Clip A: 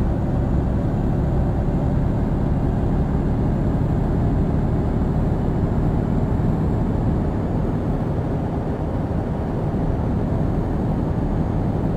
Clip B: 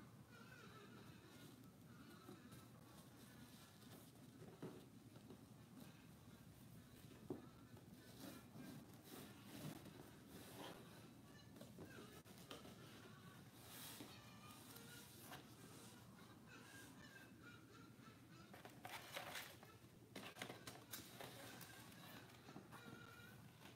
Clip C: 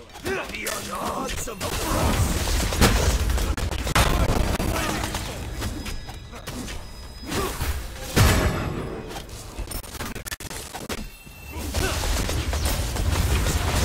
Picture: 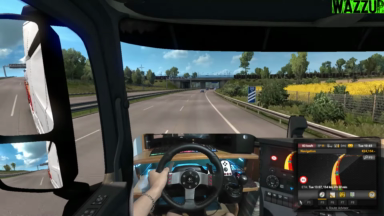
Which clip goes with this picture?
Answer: A